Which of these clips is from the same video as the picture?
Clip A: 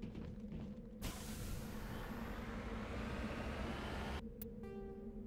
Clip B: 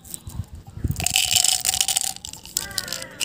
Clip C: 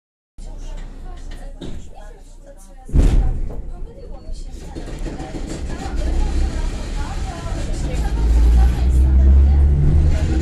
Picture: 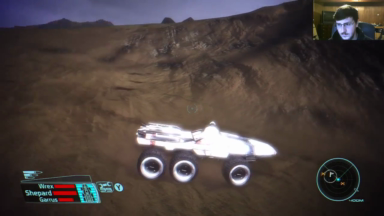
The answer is A